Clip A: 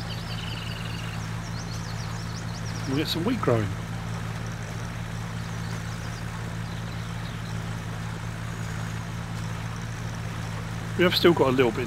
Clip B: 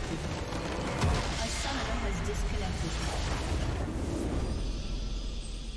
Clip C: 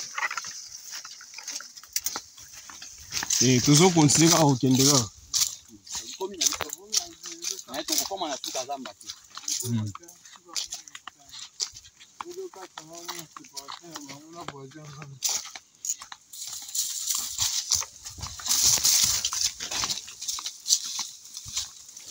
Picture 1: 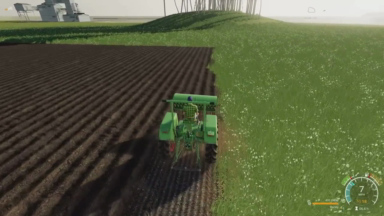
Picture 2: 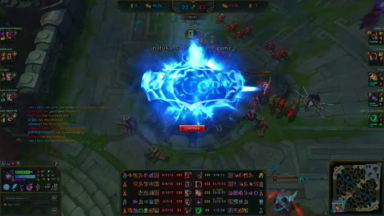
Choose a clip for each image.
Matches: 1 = A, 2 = B